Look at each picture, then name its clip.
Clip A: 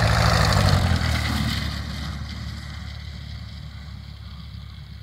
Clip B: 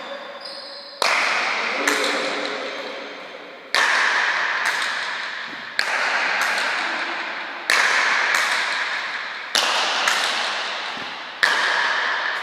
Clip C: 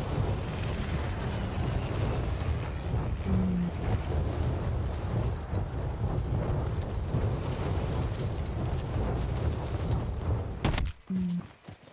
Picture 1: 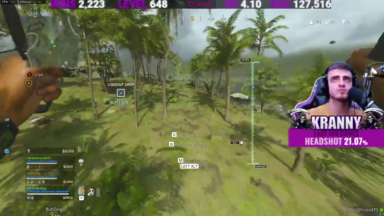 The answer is C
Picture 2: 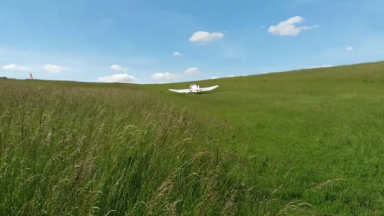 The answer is A